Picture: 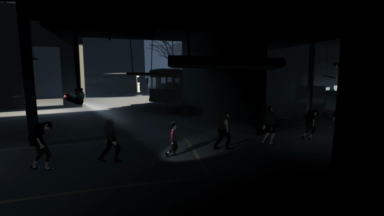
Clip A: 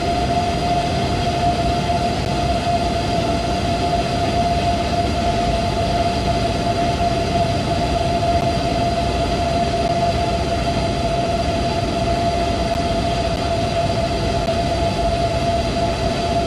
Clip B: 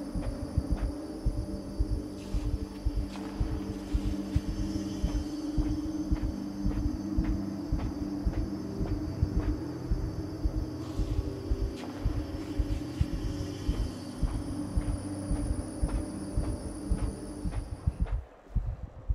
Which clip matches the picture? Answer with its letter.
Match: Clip B